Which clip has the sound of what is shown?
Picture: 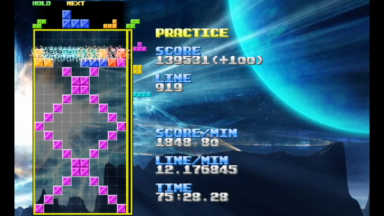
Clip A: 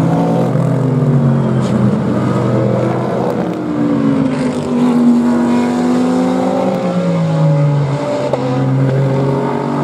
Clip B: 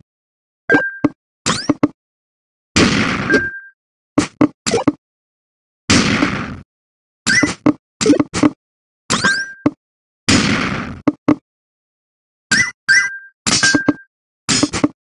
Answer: B